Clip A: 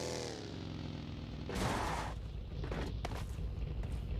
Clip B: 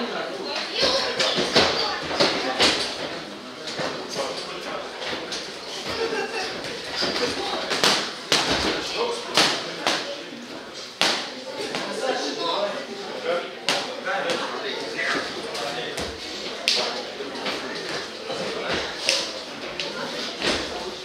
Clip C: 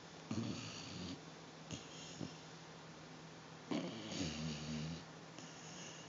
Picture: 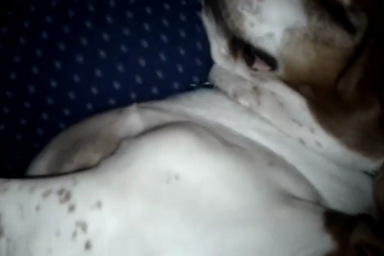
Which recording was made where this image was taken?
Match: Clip C